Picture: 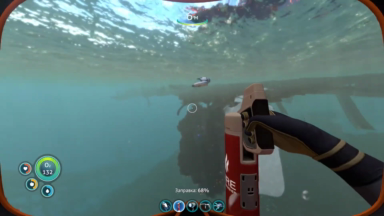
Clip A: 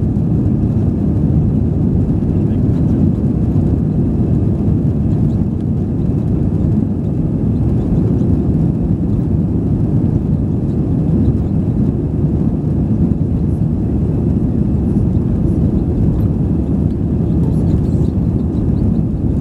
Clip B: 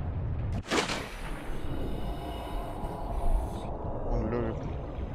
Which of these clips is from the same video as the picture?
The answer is B